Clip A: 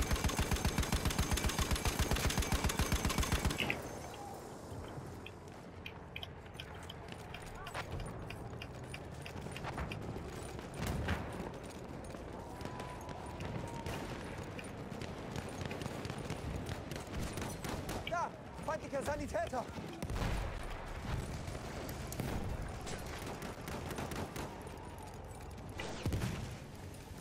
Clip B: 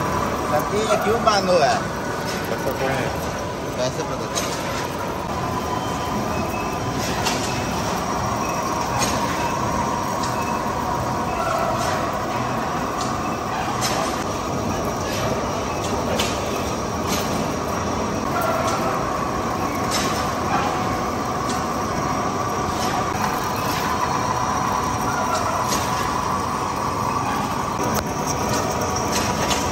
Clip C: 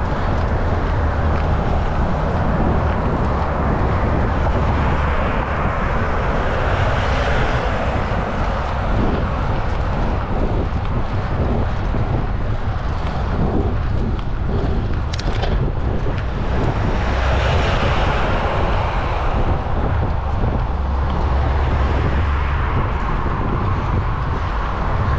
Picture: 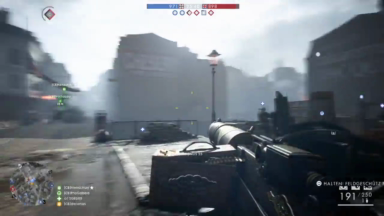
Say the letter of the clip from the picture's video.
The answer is A